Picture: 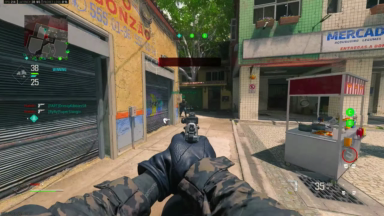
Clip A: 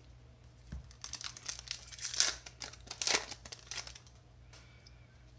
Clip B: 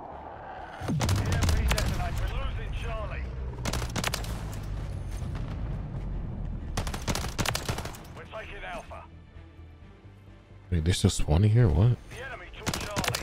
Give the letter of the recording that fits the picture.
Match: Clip B